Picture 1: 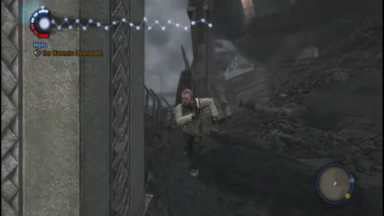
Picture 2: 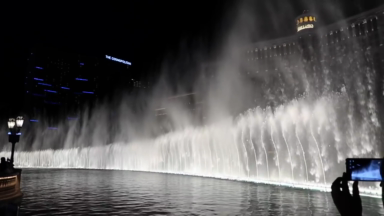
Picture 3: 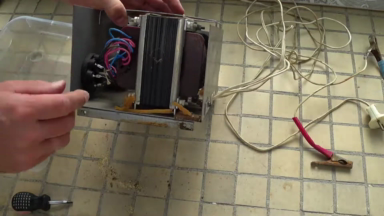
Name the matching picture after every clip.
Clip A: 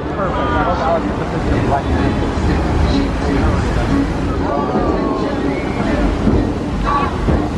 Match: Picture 2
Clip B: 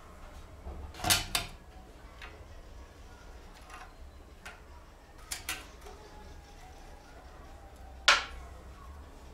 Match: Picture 3